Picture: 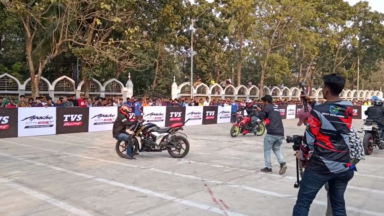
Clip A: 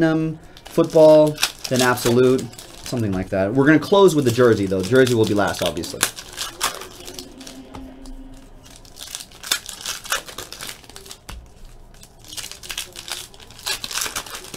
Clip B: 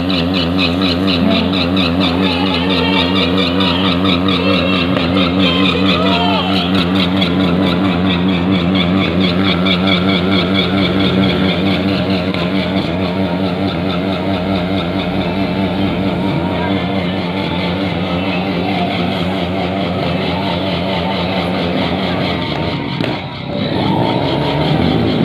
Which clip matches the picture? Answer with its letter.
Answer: B